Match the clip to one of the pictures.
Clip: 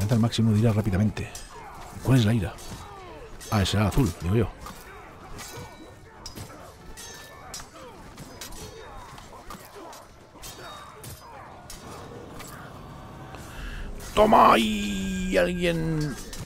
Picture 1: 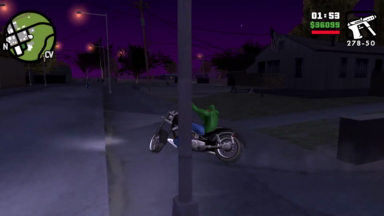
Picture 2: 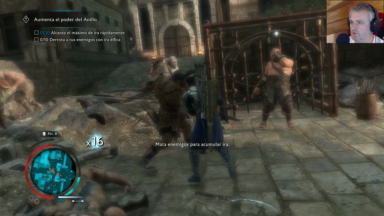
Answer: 2